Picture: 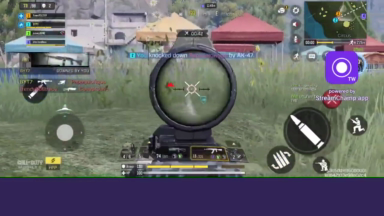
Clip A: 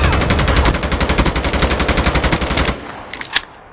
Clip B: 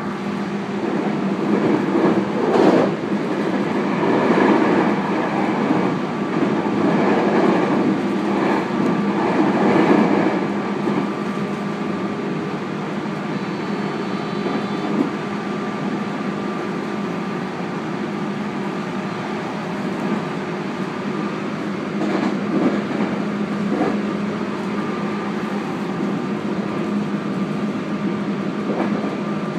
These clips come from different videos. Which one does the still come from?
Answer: A